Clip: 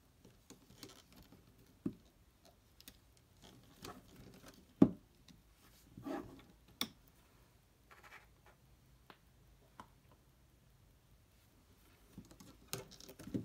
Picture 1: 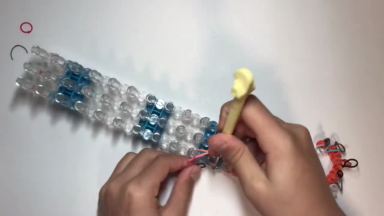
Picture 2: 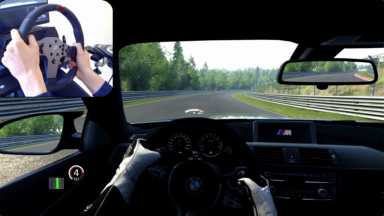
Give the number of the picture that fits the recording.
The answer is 1